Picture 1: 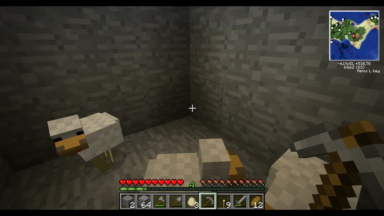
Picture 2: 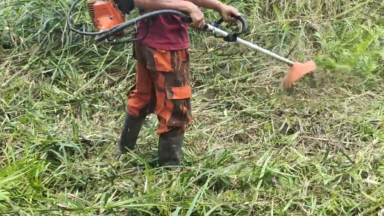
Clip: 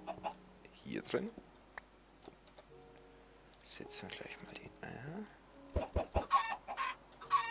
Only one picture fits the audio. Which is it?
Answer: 1